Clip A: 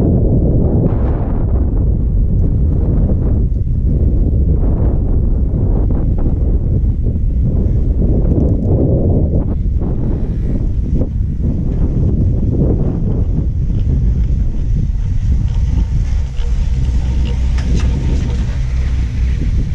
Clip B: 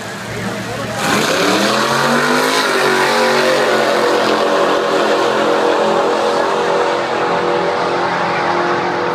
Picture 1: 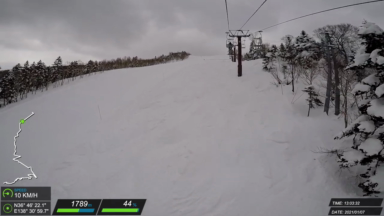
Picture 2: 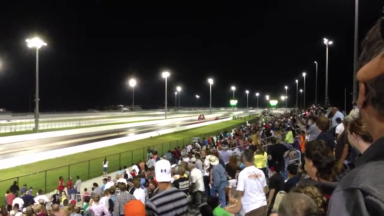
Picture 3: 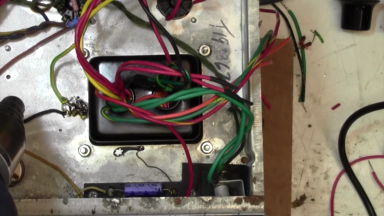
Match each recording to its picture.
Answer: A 1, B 2